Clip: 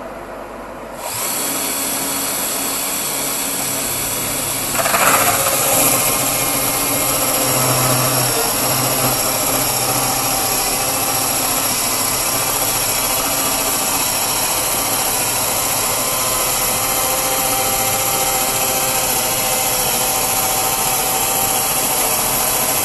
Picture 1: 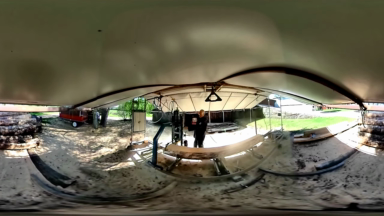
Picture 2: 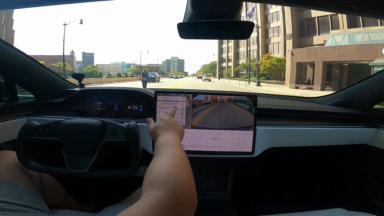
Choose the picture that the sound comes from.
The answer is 1